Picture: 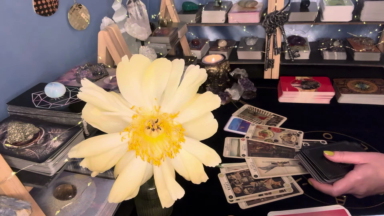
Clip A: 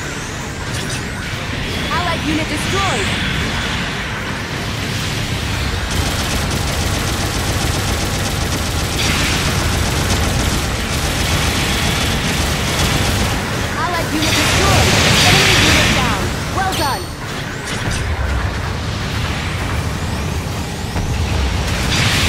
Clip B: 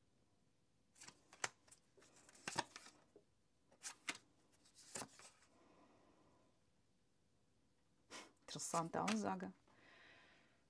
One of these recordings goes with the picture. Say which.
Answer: B